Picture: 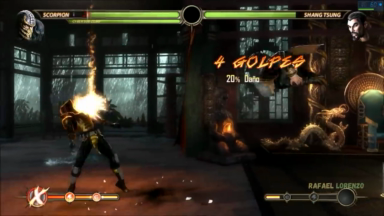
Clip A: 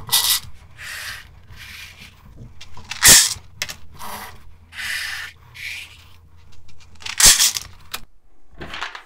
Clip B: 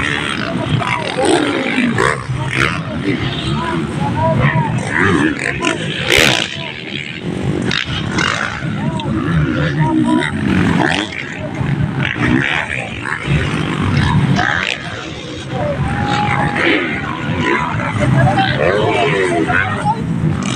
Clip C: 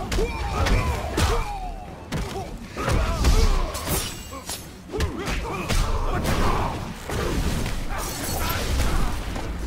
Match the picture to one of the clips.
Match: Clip C